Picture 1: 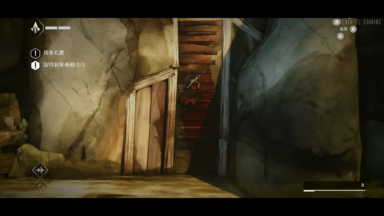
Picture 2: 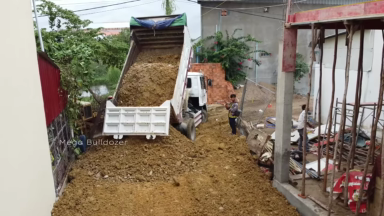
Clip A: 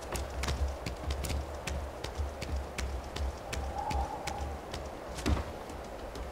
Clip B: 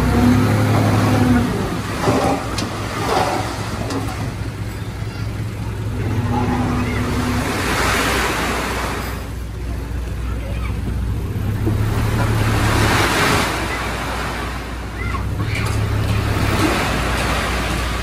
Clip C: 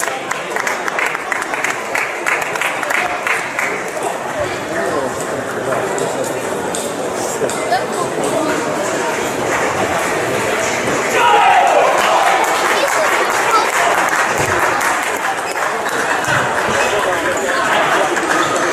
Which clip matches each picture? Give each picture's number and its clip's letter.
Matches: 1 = A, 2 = B